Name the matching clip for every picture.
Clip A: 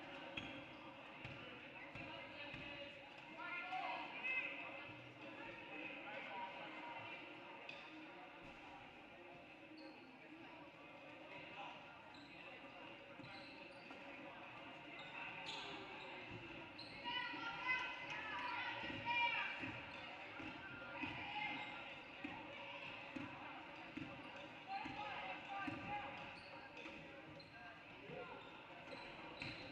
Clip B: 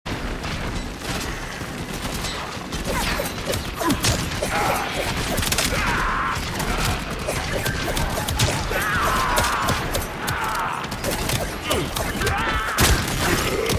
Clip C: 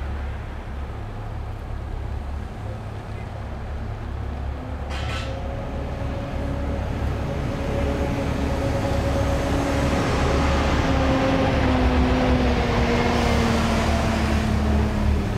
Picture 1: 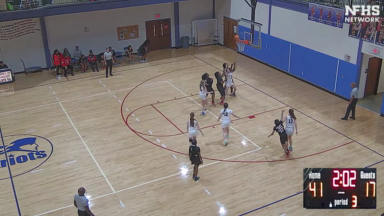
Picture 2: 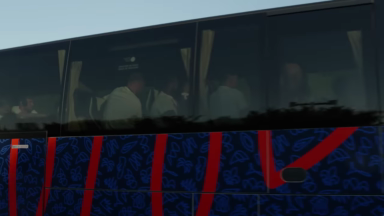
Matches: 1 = A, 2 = C